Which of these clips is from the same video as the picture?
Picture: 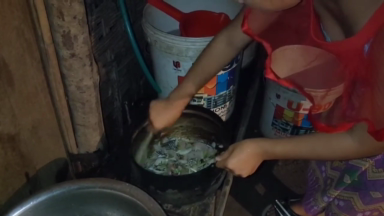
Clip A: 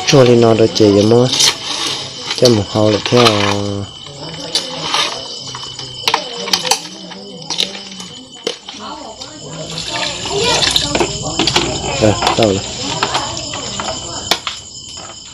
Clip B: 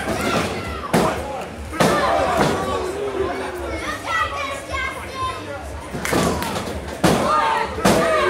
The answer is A